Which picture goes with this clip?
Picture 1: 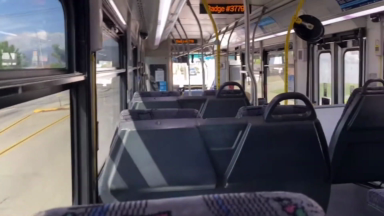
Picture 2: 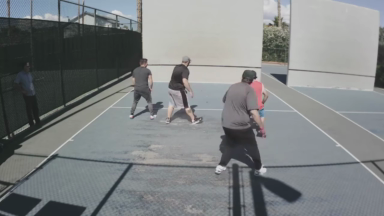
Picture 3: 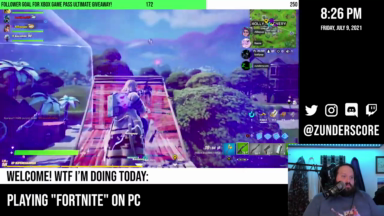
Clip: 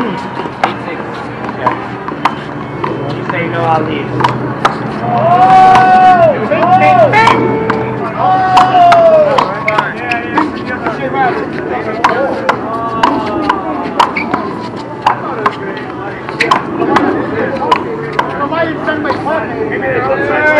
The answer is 2